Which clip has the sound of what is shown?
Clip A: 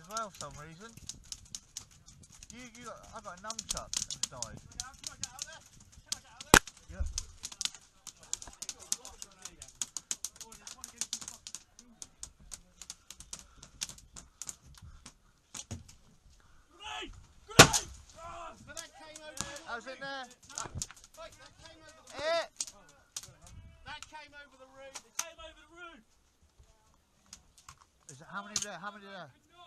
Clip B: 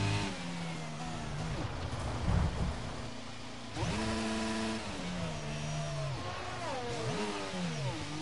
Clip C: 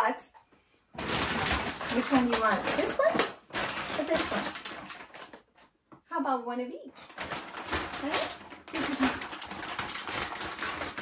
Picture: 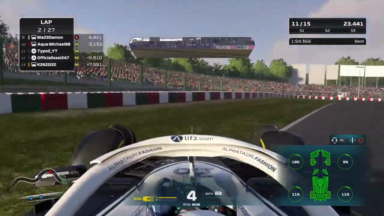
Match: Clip B